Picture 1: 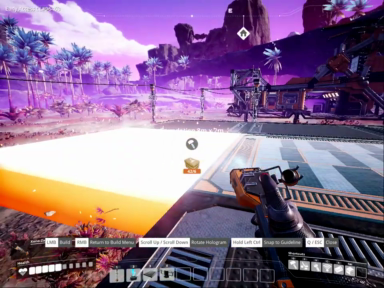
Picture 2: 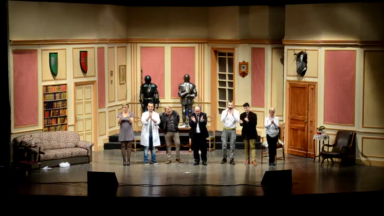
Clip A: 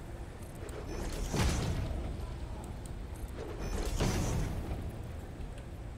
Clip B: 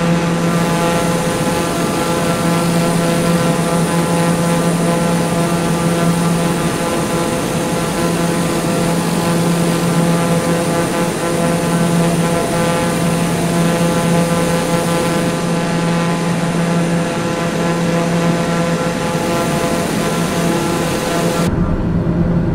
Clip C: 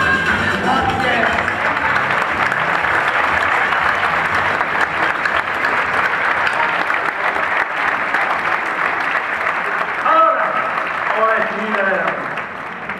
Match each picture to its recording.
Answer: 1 A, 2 C